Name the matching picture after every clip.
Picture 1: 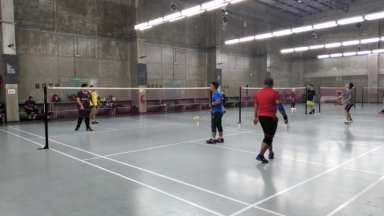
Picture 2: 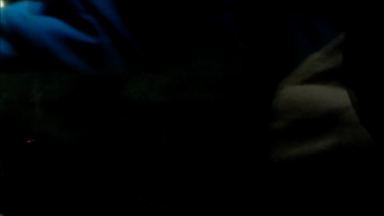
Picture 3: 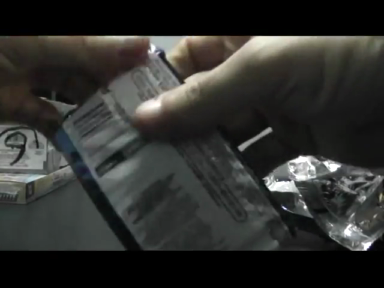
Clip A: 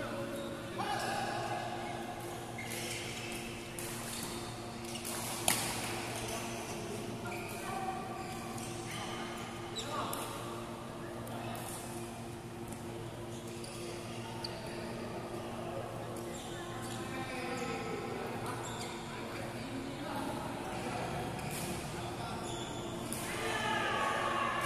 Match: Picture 1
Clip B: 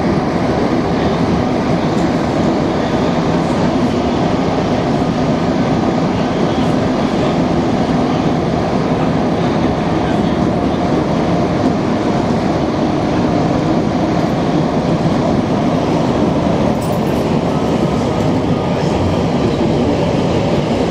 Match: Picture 2